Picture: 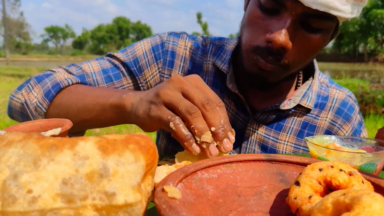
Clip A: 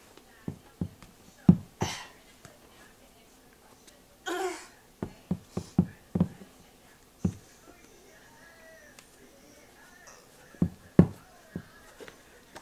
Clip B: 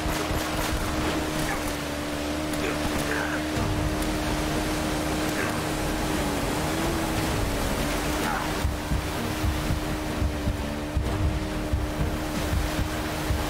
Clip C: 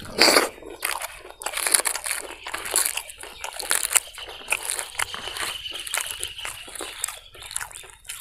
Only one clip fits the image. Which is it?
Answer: C